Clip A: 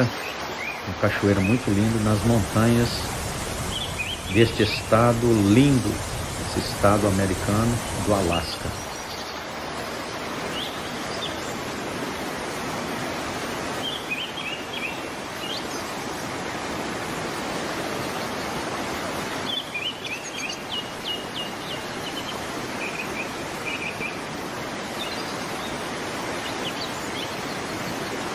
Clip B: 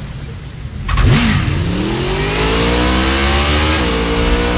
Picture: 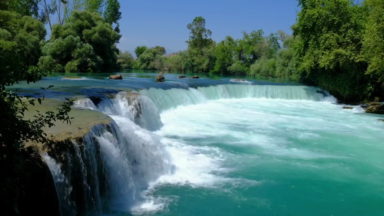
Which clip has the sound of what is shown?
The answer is A